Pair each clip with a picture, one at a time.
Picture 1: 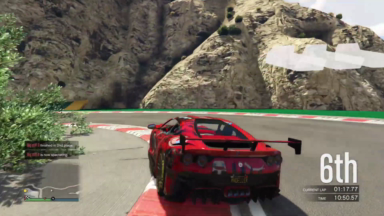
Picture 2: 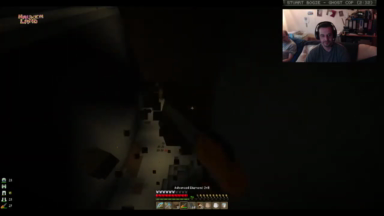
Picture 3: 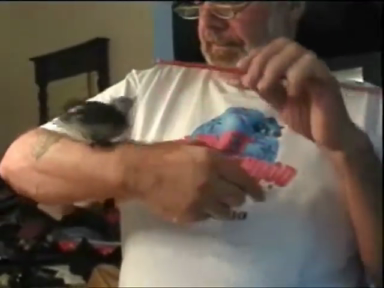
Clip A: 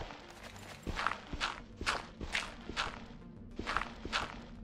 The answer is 2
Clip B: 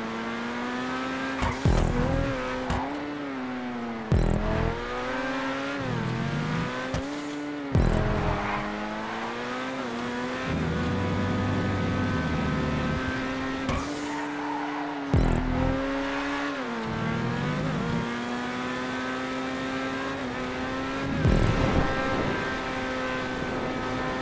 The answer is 1